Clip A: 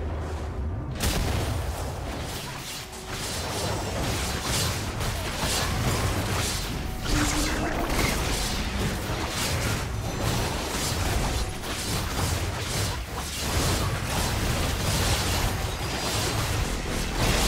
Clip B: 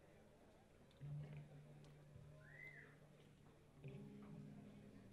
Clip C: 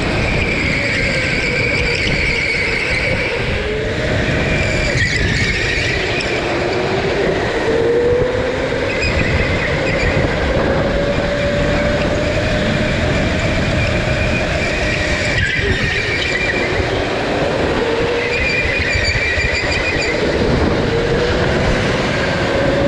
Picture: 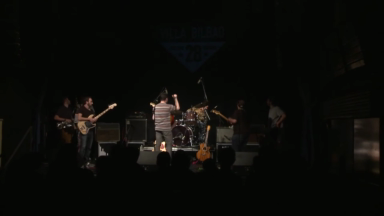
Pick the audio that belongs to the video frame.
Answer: B